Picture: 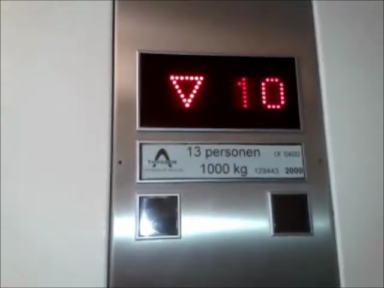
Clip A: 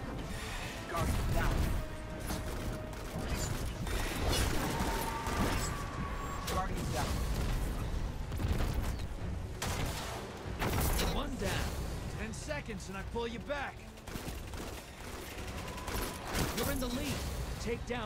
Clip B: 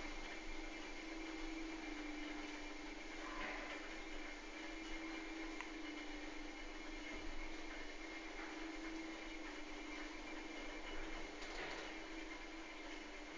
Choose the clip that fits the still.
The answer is B